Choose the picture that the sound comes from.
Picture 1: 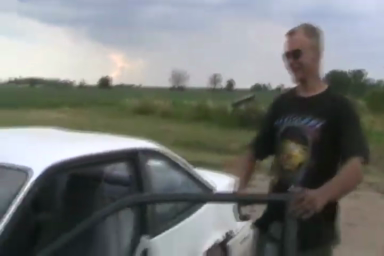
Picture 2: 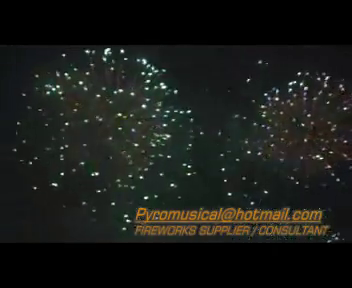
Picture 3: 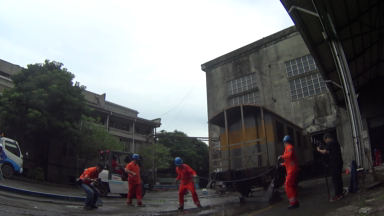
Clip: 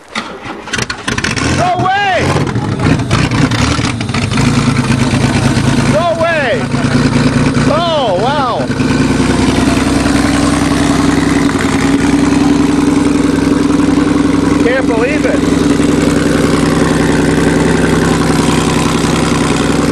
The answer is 1